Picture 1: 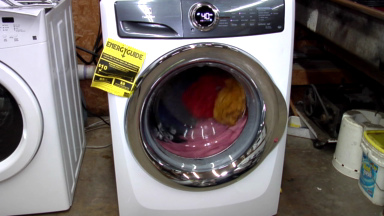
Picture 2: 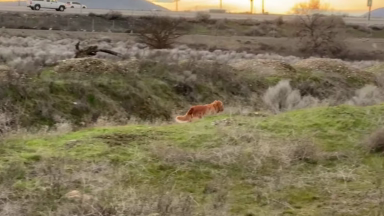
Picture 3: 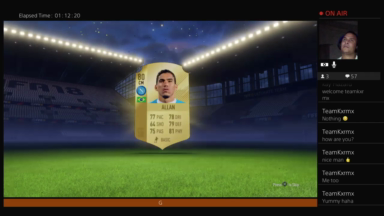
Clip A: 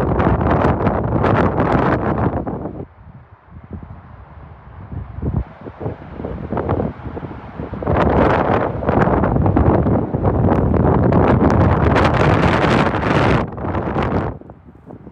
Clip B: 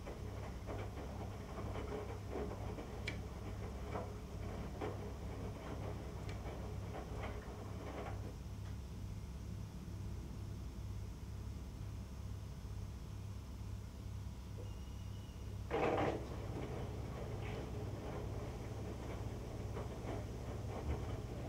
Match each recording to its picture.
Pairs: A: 2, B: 1